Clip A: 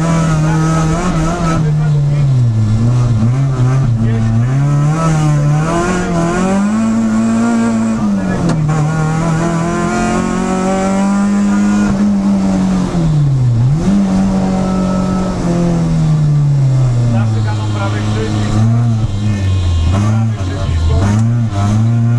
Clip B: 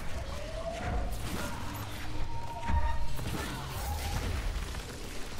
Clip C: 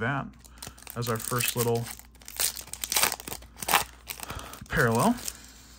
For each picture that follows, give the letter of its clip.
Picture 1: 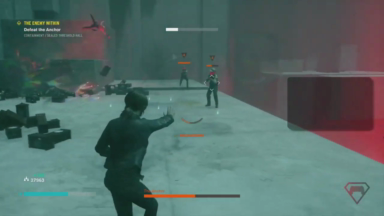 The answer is B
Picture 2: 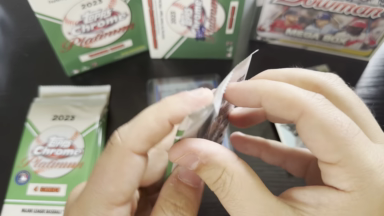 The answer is C